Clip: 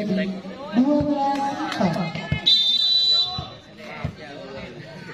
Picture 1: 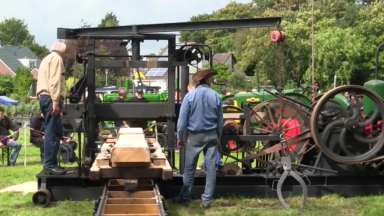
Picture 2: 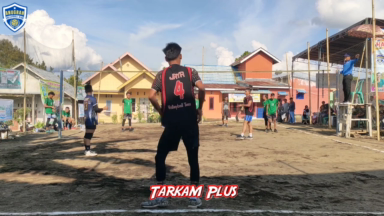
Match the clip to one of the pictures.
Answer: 2